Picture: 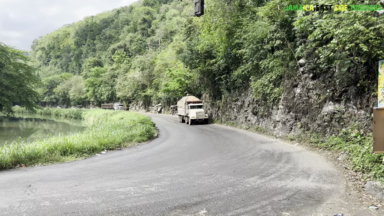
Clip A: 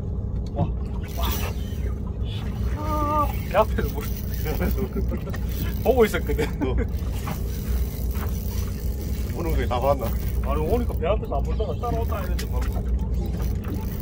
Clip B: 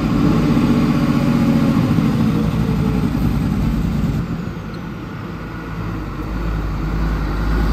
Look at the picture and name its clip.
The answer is B